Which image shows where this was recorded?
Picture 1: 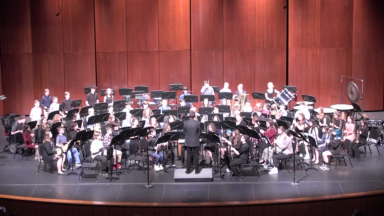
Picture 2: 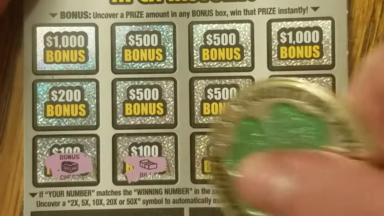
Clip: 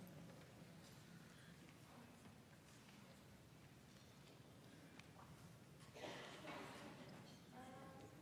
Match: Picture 1